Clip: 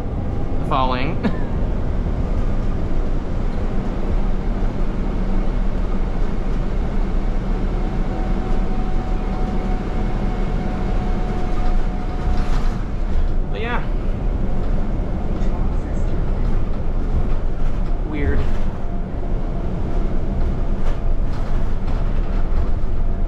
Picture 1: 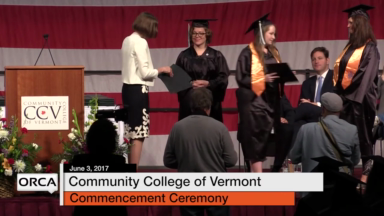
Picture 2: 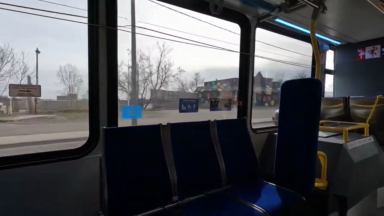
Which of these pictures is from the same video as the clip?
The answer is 2